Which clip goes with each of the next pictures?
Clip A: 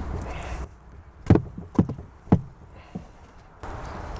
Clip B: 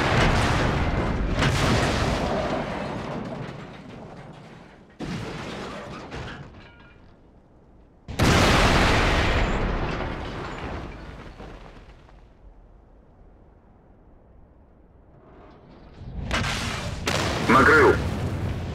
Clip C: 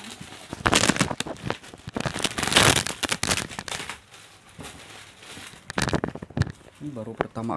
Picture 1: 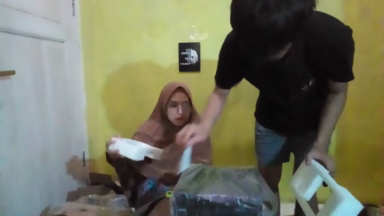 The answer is C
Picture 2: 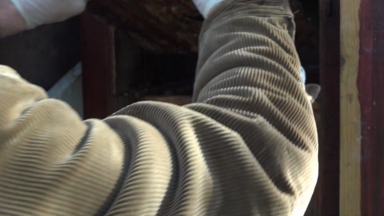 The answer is A